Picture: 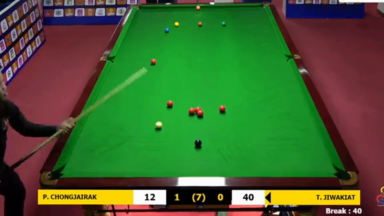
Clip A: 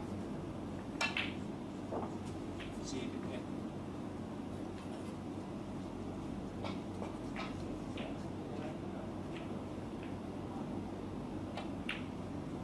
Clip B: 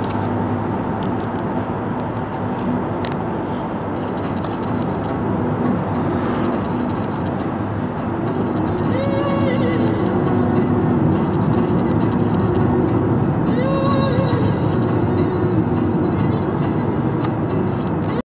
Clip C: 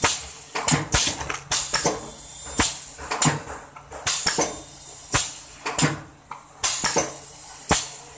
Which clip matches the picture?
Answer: A